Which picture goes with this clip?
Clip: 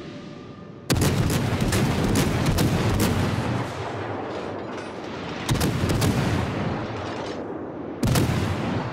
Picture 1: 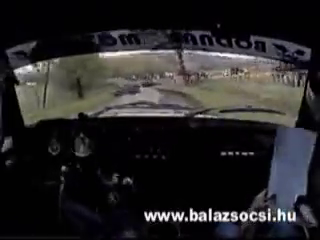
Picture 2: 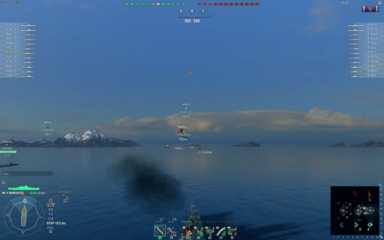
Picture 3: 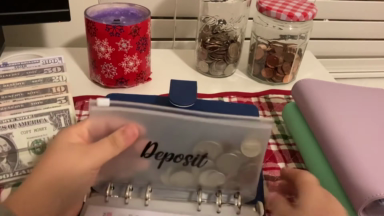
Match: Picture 2